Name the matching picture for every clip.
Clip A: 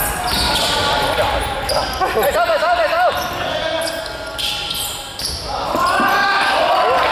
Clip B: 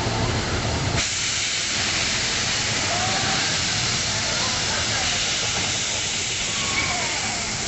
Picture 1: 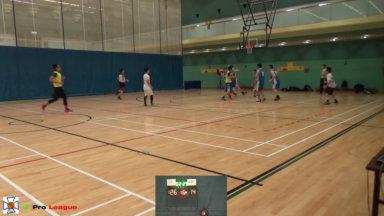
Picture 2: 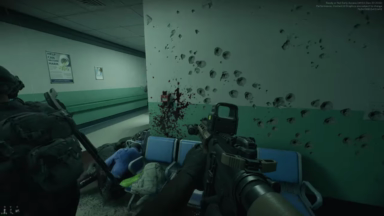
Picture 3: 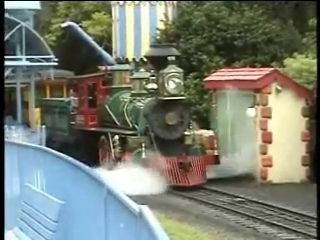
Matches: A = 1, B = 3